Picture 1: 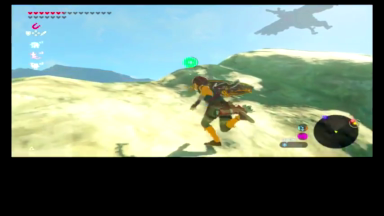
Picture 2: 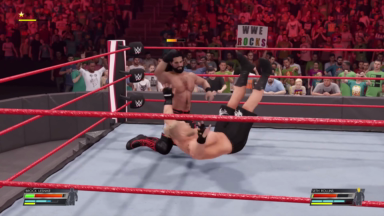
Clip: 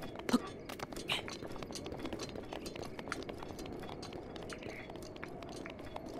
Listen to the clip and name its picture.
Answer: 1